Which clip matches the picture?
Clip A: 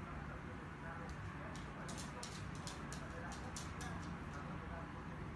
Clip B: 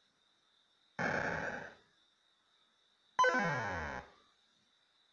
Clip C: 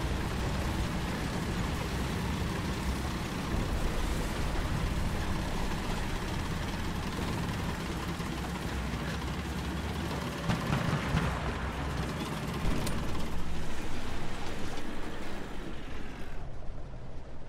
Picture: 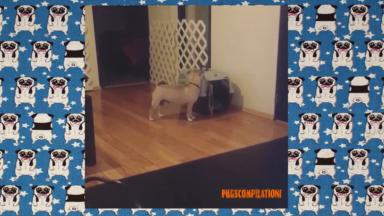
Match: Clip A